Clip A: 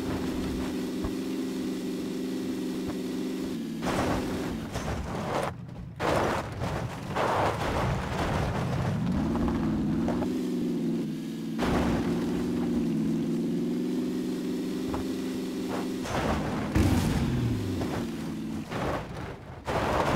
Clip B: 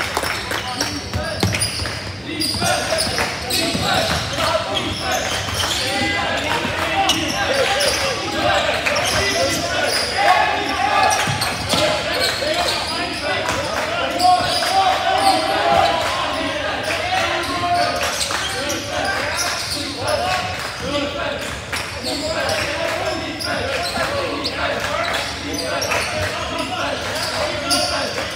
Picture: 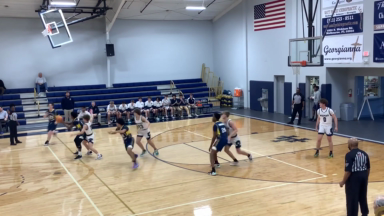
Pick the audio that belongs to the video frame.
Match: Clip B